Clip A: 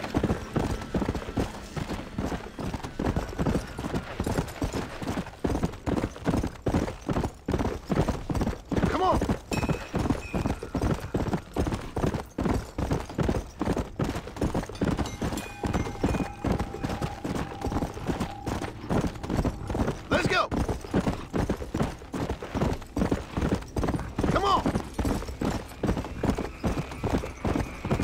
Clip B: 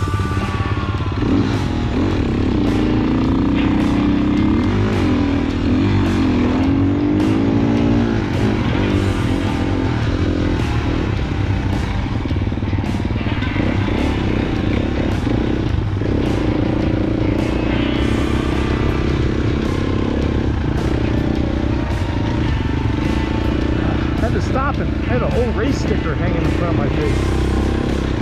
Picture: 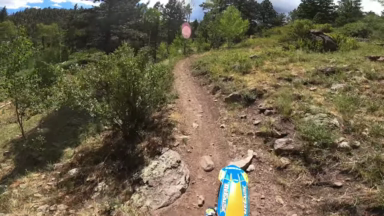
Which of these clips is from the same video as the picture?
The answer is B